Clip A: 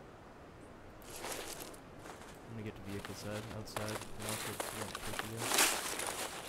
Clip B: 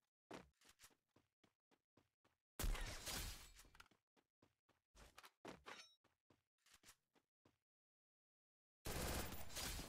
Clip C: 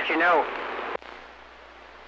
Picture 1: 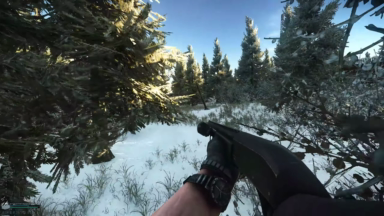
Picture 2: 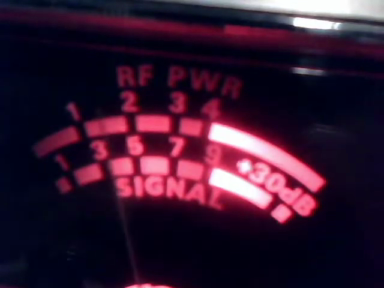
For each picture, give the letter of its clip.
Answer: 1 A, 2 C